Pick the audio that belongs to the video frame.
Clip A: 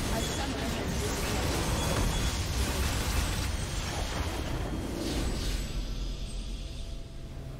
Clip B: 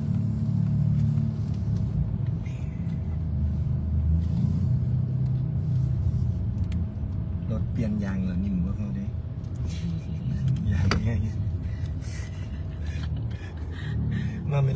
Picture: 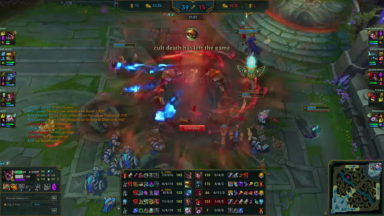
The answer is A